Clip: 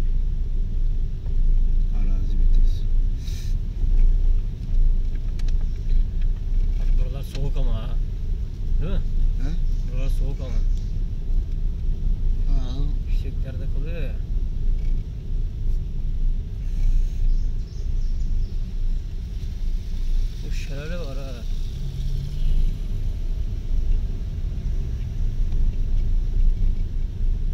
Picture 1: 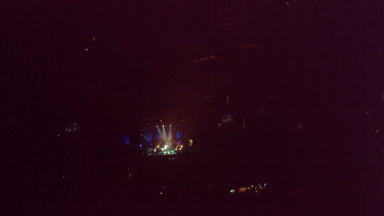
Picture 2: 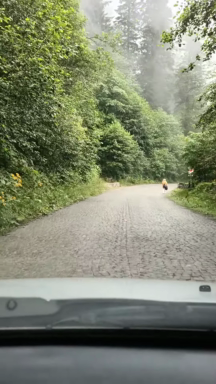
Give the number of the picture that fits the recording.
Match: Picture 2